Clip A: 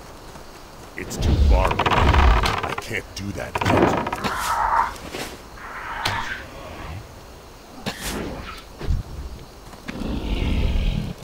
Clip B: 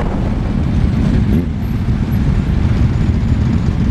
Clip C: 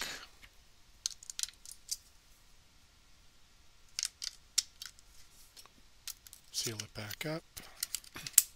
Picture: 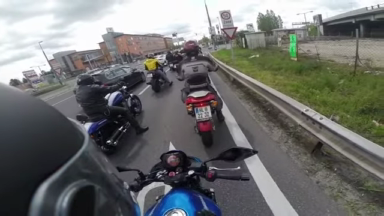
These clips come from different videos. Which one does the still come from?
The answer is B